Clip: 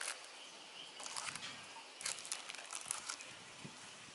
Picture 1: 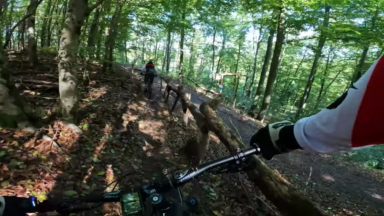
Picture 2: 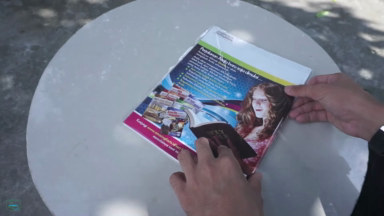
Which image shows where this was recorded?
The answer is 2